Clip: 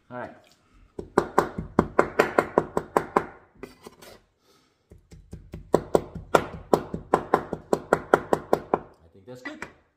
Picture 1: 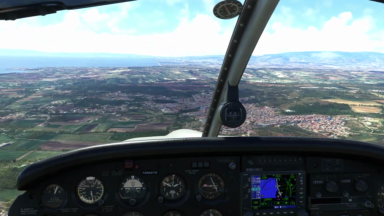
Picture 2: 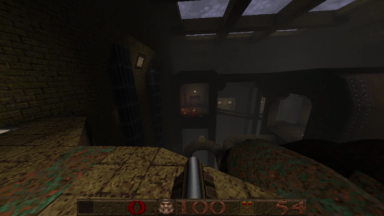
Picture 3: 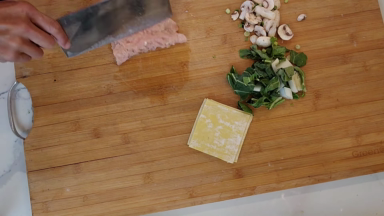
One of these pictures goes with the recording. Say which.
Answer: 3